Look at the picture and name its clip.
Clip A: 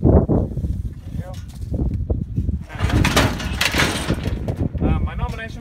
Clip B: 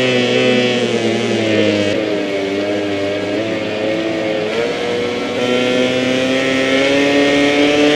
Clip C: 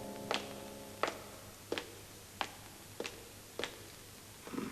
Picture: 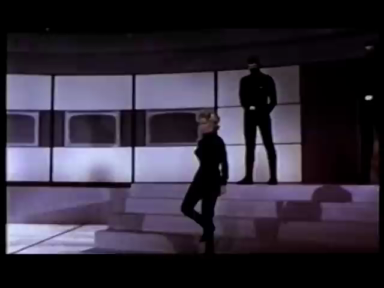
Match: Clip C